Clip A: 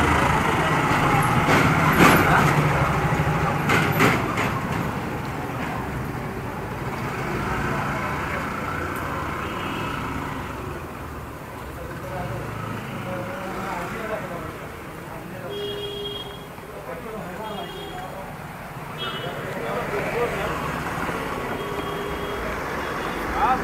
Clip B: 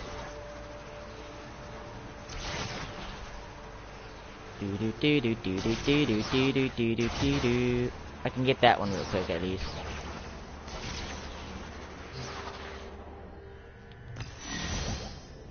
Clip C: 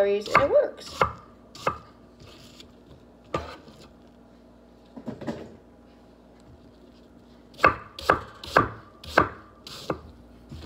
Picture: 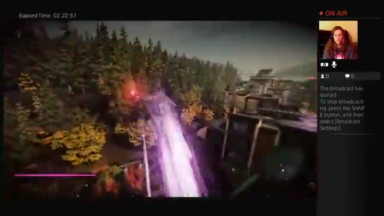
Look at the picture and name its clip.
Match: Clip B